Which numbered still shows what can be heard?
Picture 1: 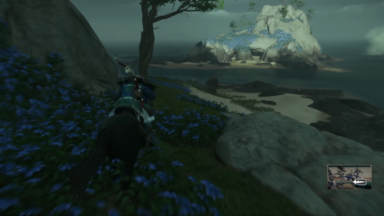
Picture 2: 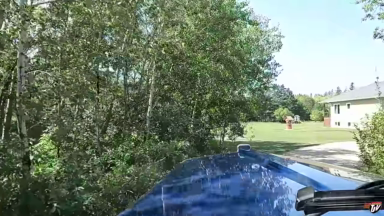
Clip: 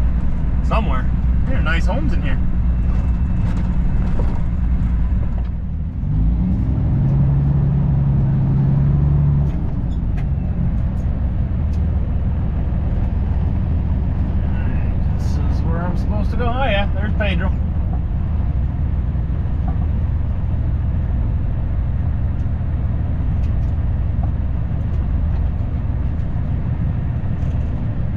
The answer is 2